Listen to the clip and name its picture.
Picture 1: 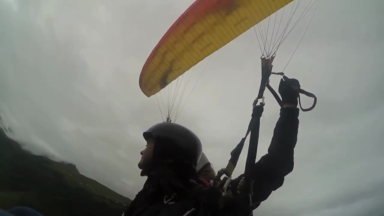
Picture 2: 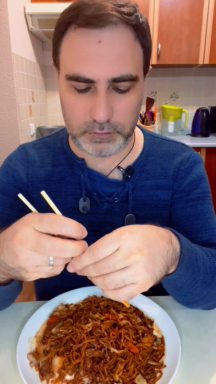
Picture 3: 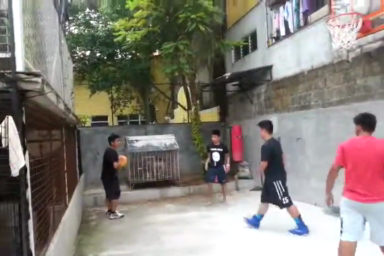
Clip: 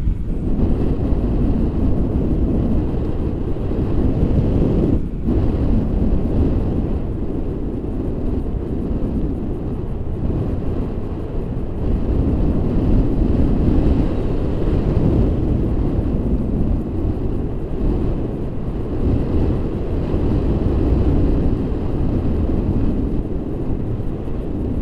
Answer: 1